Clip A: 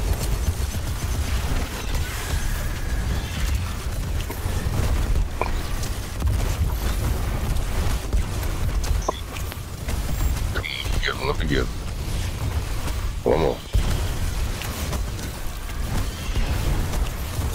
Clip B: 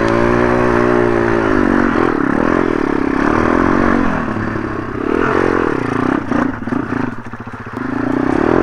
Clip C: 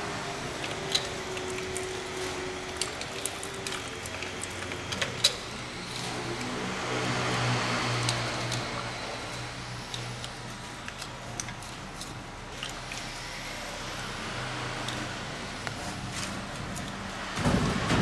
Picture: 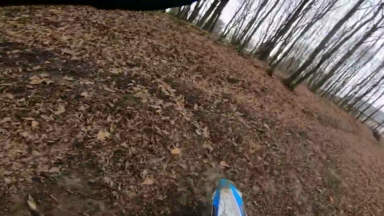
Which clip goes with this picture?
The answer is B